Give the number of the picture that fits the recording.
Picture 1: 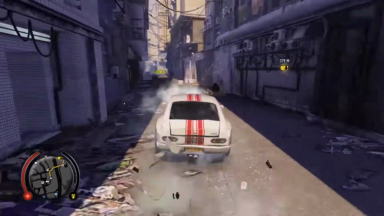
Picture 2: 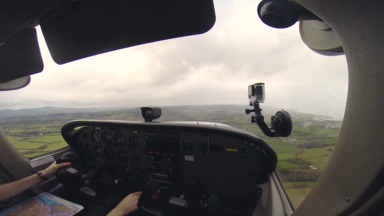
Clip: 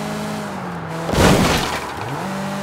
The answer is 1